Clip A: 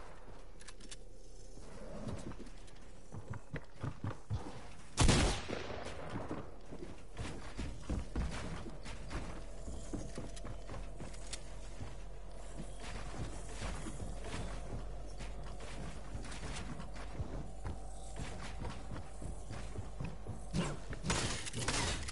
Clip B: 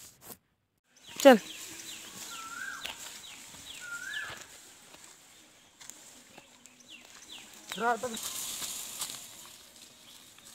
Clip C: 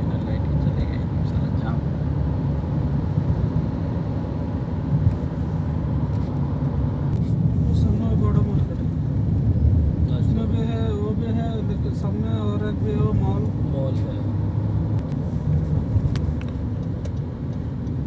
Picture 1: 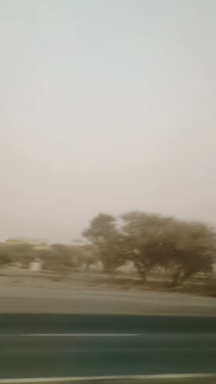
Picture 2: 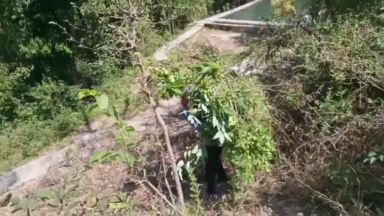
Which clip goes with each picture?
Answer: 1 C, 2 B